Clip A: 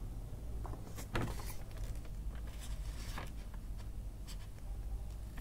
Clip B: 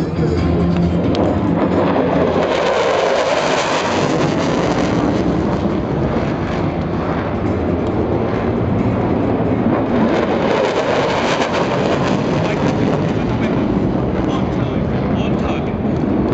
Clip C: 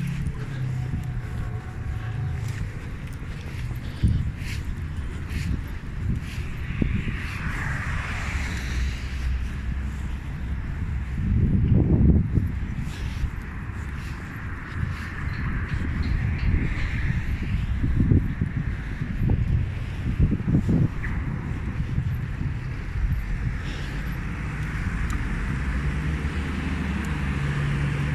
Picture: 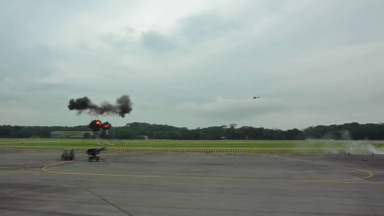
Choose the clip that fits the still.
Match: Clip B